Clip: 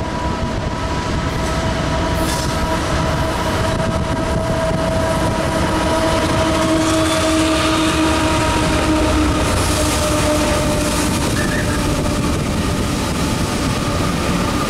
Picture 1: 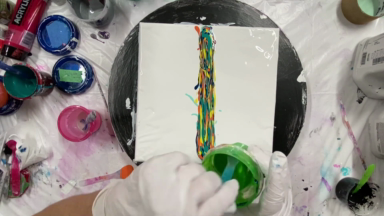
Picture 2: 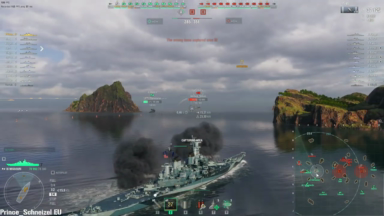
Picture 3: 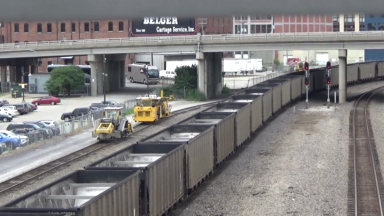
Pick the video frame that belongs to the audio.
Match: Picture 3